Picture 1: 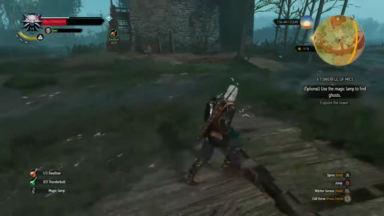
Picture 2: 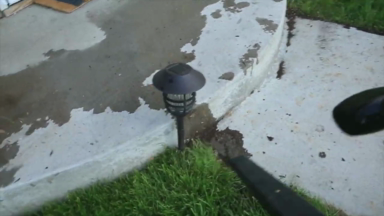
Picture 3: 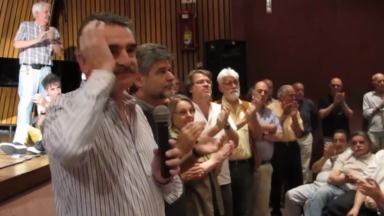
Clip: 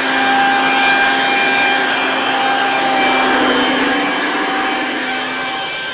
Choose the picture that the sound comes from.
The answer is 2